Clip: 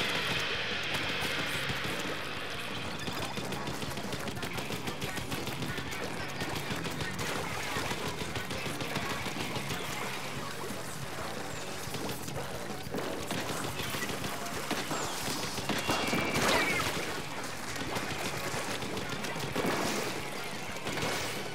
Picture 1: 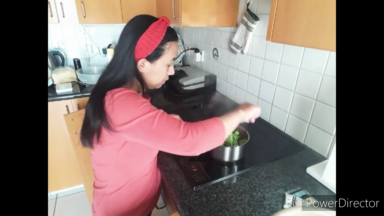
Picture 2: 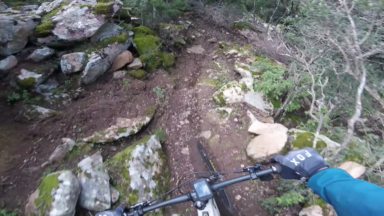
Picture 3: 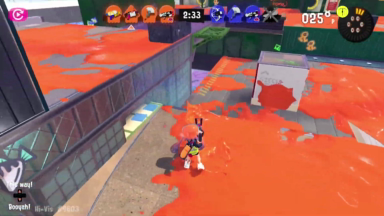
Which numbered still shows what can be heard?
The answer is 3